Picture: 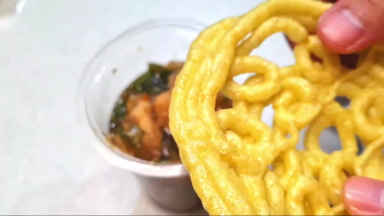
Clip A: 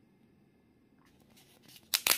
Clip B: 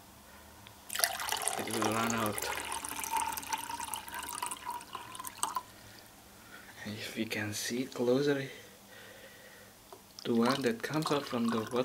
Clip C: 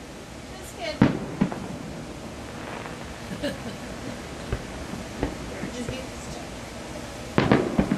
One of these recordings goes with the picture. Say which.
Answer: A